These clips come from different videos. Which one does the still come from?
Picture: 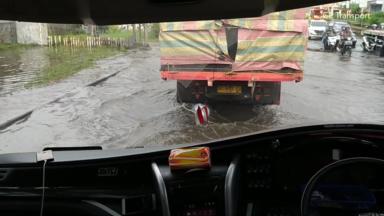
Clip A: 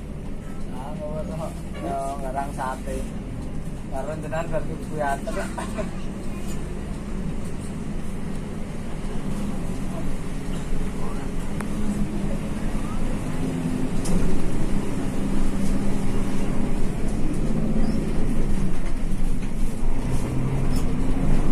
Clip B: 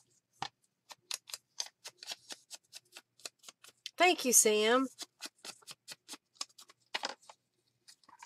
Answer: A